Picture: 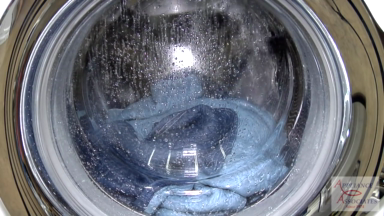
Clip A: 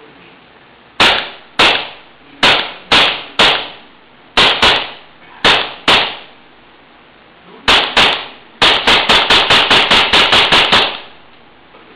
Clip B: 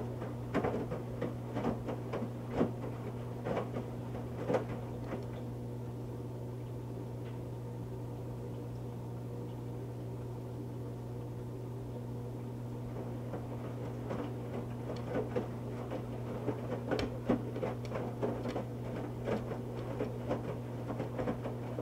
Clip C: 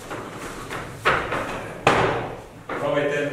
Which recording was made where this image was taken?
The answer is B